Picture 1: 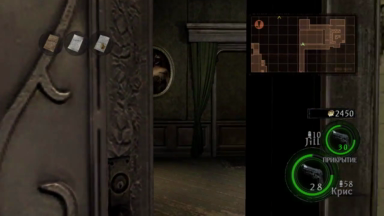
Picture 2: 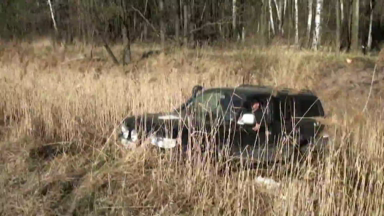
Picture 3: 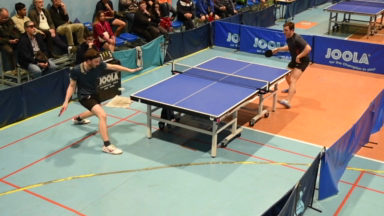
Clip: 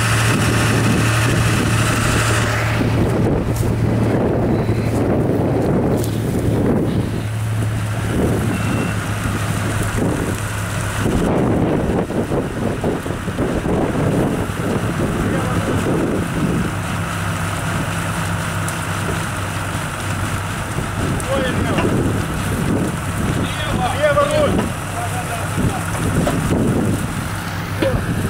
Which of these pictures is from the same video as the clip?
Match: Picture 2